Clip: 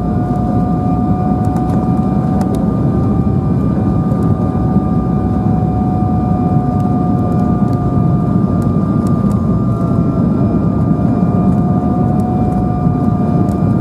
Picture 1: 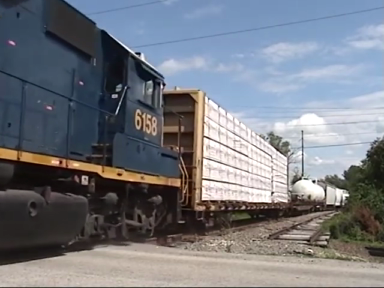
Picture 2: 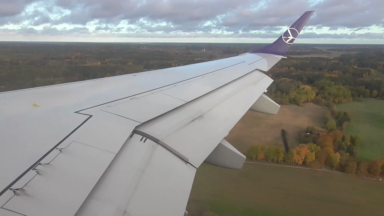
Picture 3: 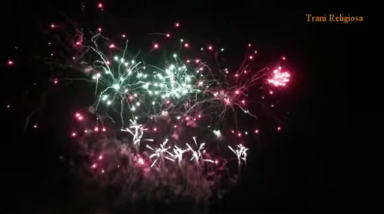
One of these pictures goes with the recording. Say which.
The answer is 2